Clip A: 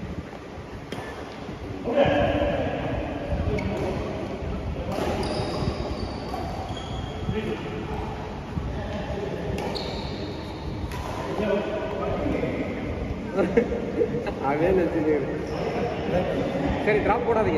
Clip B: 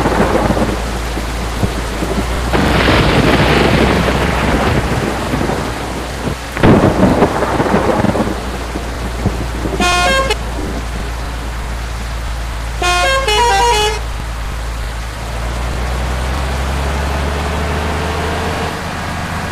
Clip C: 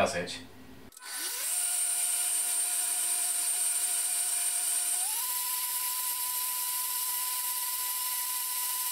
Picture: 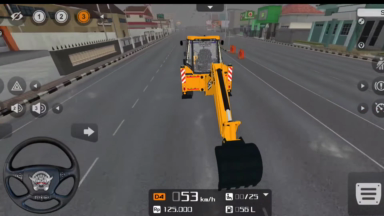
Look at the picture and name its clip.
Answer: B